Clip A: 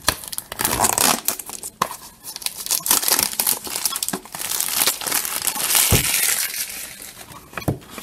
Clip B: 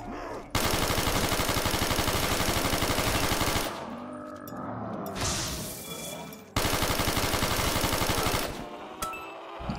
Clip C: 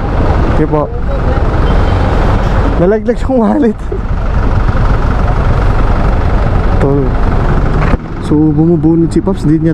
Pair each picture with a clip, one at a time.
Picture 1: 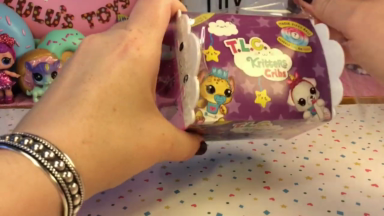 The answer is A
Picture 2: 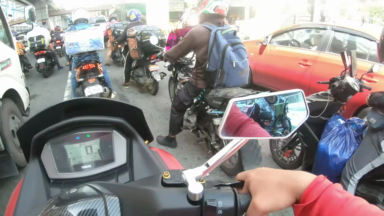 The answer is C